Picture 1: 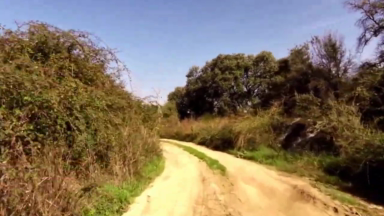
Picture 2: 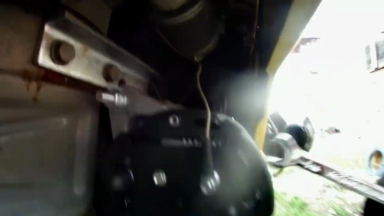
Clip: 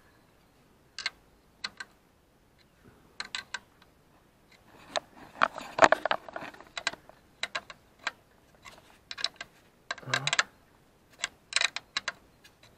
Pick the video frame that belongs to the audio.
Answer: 2